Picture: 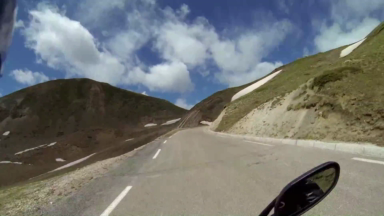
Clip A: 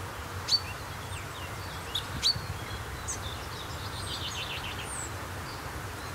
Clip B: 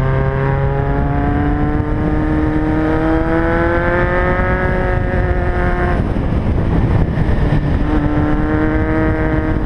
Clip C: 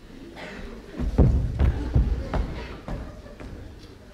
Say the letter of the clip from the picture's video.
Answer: B